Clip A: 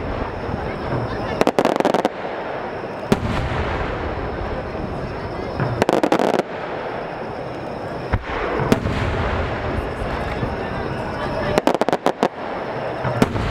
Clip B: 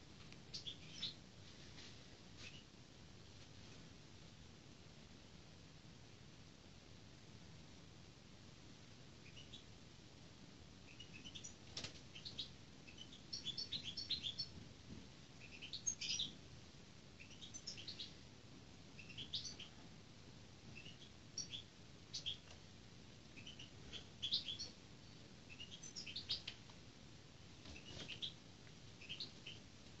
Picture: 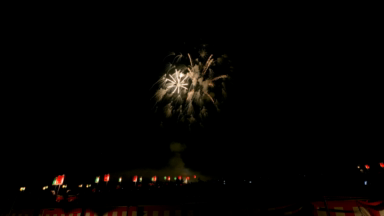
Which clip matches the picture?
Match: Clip A